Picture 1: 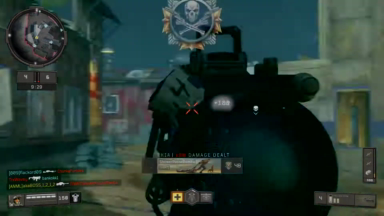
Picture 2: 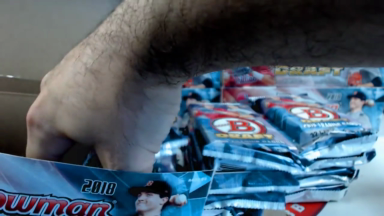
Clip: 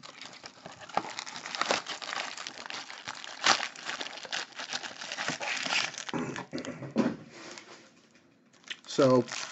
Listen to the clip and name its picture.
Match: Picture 2